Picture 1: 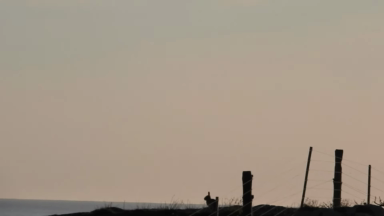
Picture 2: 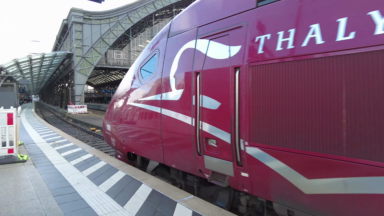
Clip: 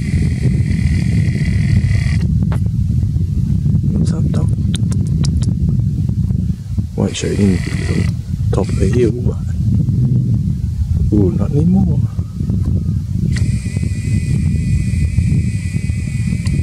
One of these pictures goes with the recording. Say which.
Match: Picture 1